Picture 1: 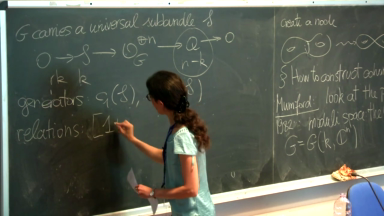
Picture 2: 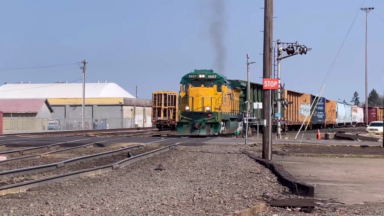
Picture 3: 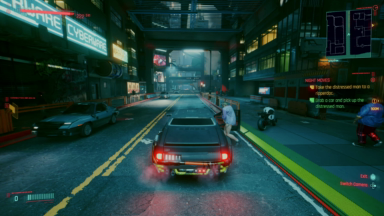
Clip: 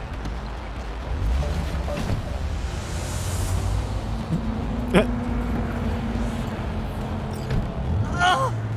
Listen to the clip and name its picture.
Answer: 3